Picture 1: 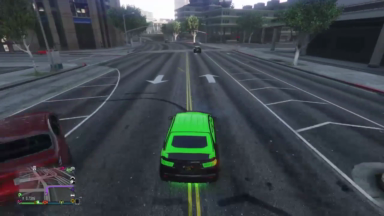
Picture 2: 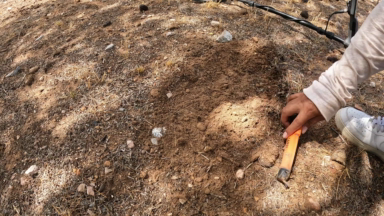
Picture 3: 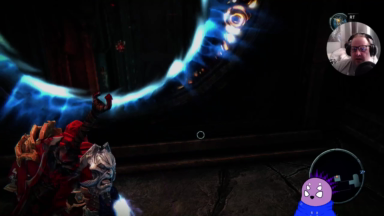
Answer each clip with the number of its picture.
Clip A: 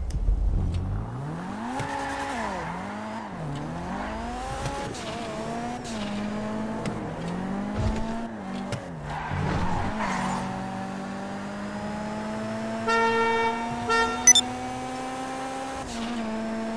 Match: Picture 1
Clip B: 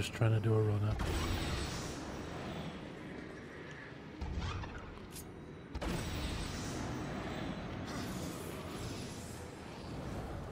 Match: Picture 3